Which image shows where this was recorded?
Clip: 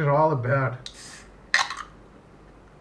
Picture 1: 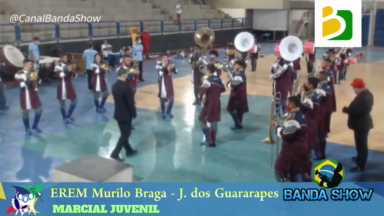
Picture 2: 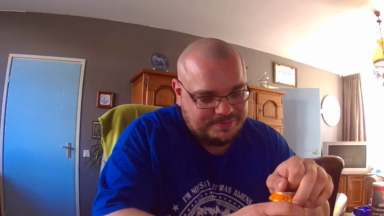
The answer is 2